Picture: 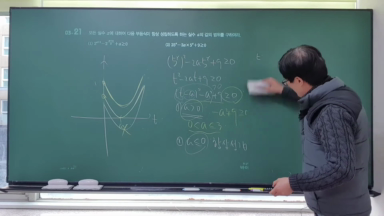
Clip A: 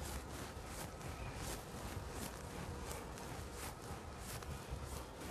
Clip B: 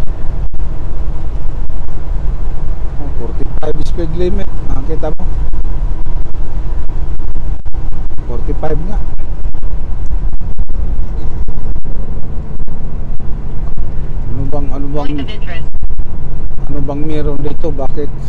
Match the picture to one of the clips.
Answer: A